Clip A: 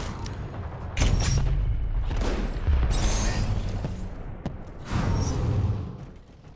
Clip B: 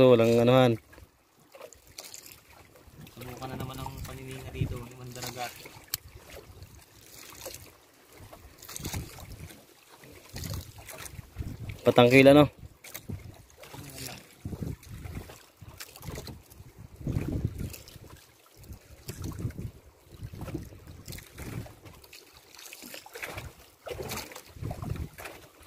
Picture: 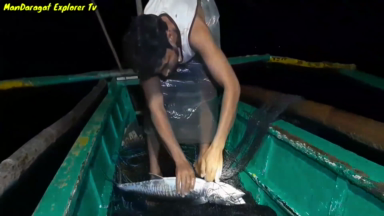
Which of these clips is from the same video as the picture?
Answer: B